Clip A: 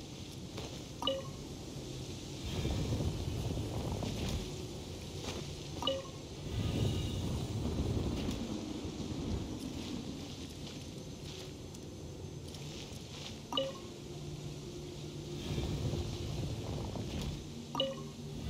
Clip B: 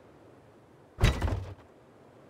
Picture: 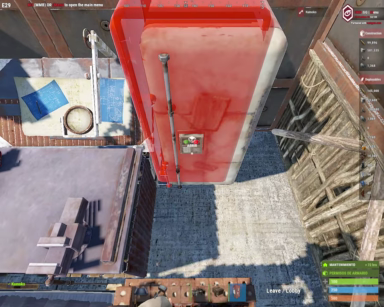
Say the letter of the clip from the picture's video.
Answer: B